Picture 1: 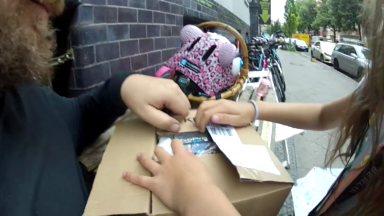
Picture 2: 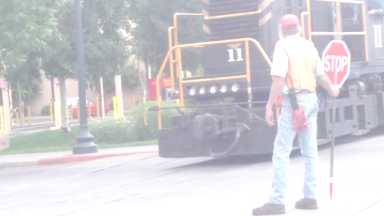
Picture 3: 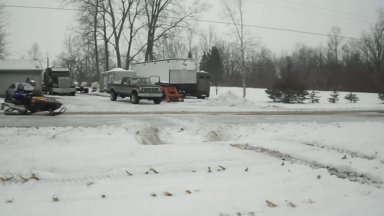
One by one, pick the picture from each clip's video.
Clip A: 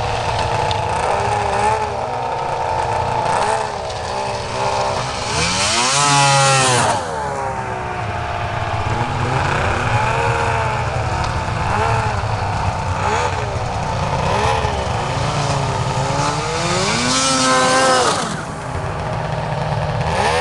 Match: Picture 3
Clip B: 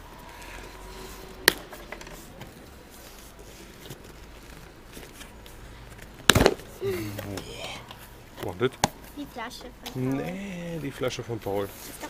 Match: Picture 1